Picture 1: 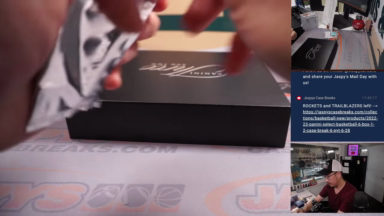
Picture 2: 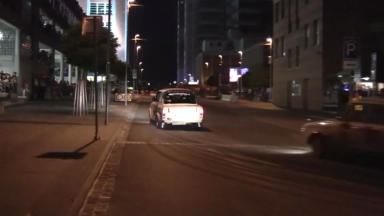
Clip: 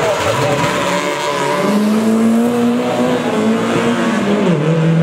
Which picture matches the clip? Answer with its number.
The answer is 2